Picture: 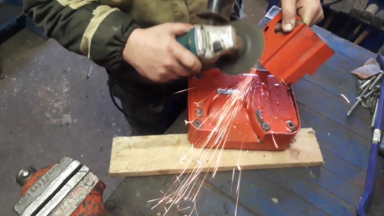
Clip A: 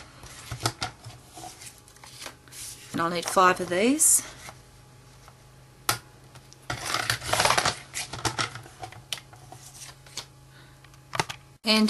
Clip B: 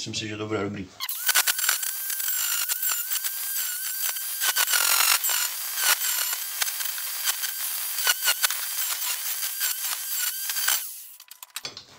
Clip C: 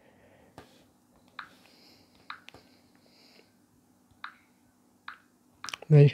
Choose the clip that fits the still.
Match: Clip B